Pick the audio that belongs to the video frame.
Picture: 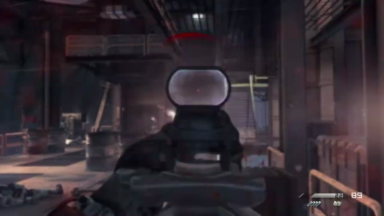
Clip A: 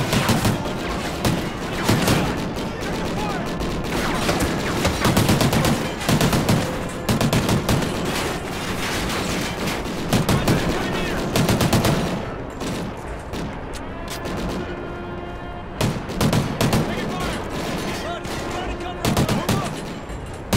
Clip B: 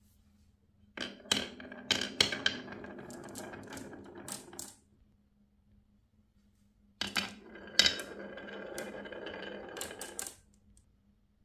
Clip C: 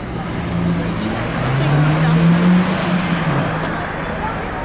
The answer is A